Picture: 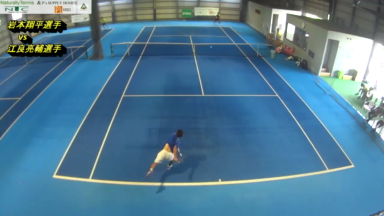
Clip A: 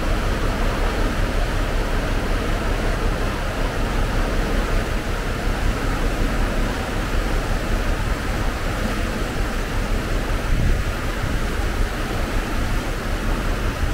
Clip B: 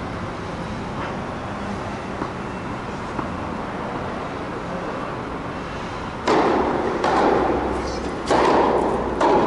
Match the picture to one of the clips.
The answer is B